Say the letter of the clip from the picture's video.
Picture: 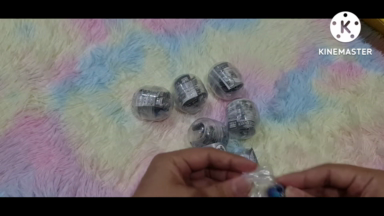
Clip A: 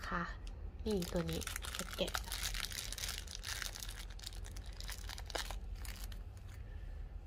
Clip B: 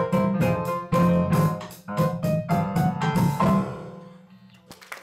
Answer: A